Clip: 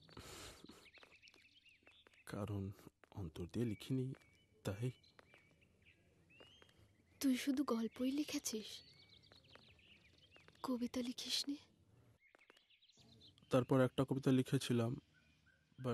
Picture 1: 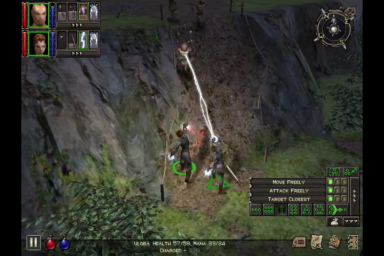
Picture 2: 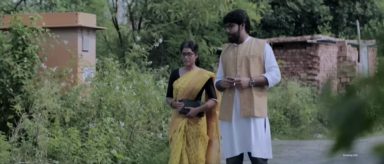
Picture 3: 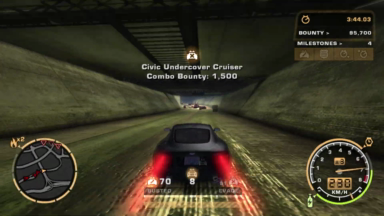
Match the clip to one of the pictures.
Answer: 2